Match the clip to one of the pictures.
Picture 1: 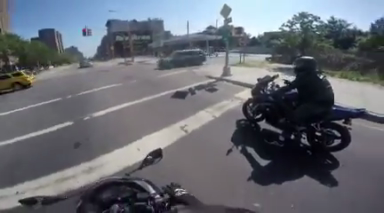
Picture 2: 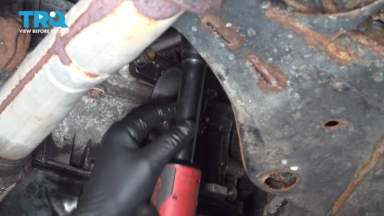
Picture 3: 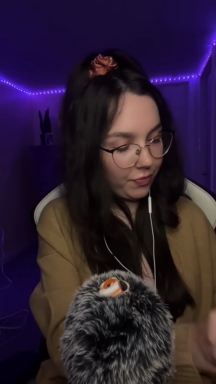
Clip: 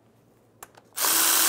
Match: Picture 2